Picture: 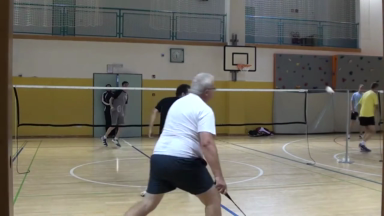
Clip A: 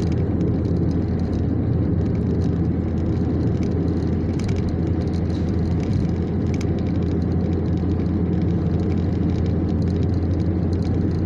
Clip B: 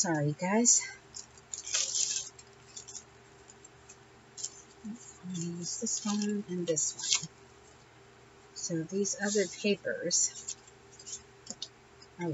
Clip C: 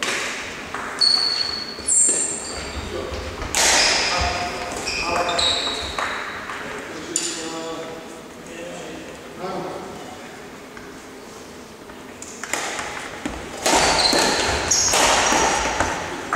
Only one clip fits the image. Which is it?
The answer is C